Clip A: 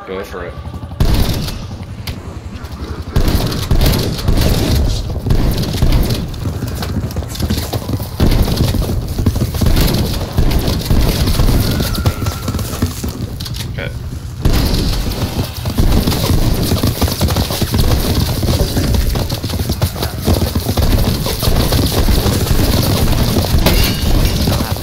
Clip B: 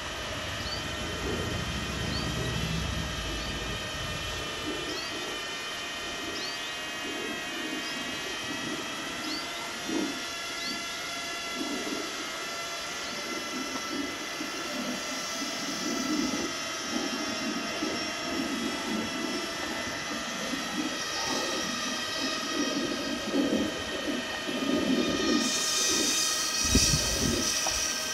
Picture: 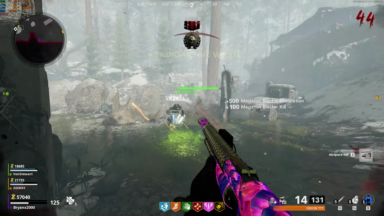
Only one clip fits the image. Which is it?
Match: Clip A